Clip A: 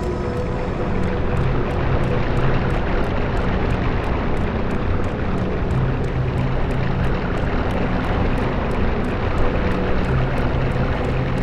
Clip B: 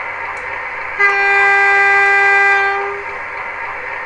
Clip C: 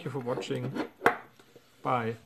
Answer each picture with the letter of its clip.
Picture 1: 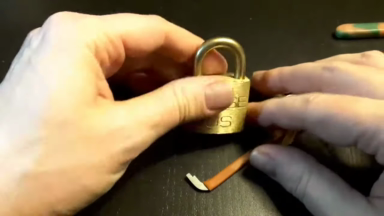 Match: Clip C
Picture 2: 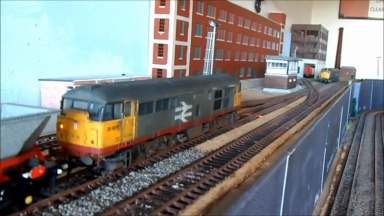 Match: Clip B